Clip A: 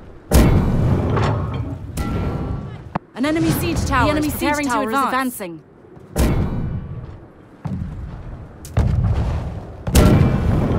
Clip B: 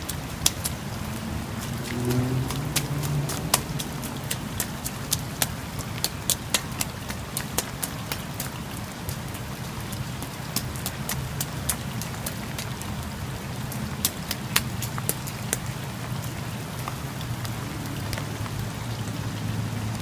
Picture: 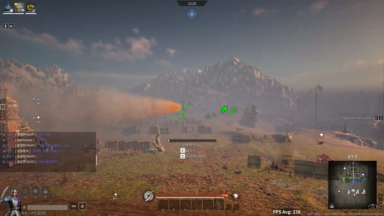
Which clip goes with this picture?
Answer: A